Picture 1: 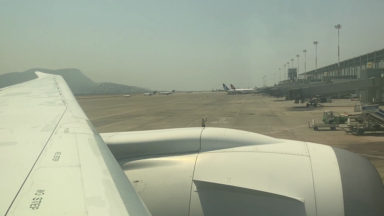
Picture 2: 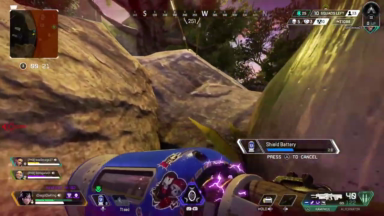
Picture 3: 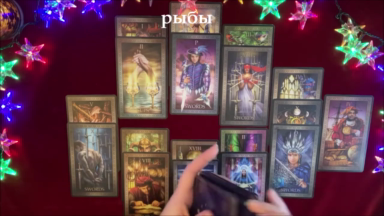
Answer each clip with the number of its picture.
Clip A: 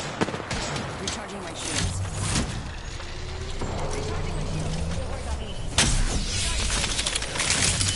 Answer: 2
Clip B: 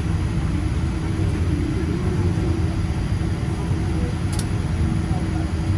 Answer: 1